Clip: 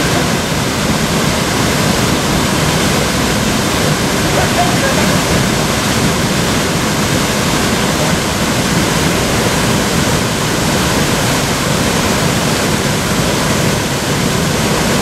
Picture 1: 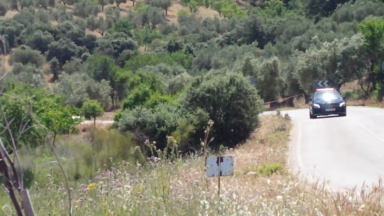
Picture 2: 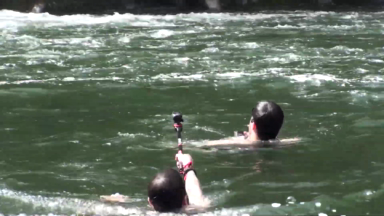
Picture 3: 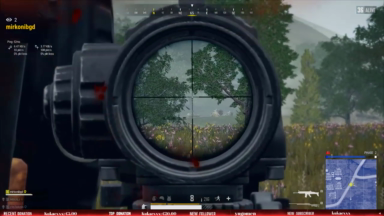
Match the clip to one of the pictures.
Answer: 2